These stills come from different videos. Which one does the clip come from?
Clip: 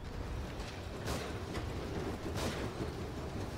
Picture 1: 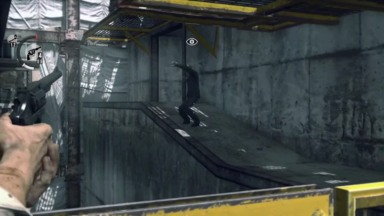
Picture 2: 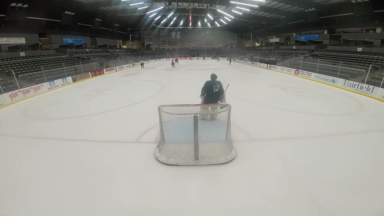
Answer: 1